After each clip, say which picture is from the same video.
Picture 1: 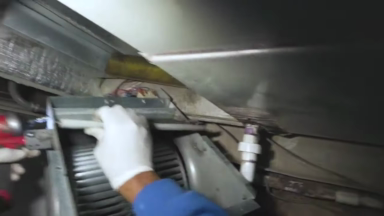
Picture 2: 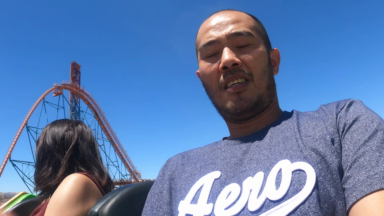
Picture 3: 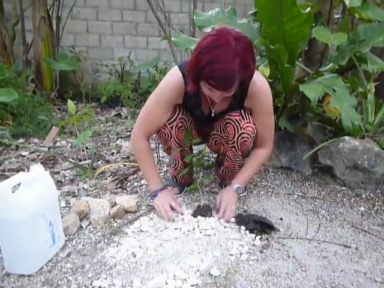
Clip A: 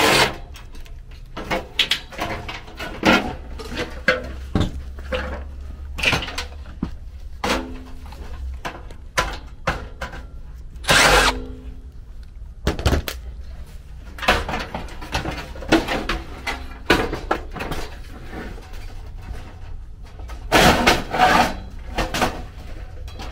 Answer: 1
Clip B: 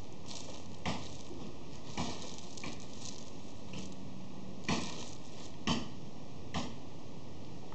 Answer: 3